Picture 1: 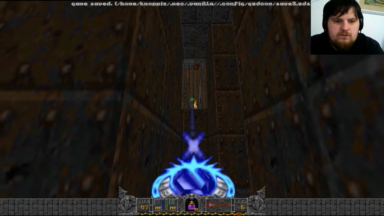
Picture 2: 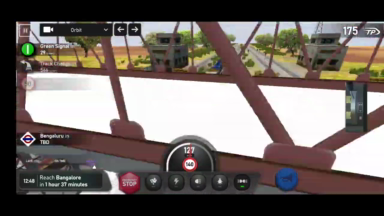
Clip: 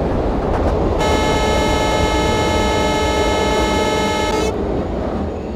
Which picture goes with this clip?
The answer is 2